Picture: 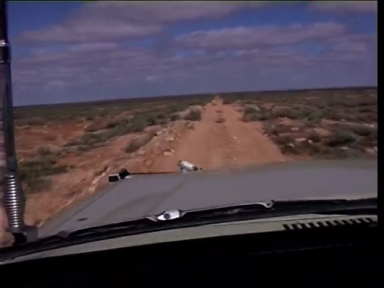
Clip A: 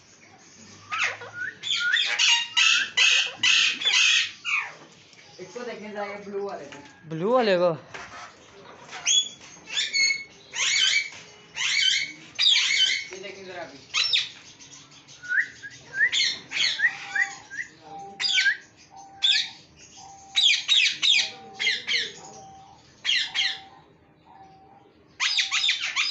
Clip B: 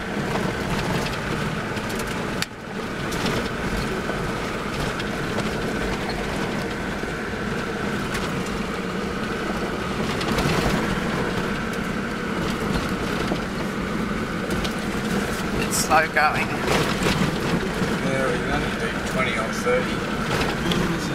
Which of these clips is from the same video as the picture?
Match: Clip B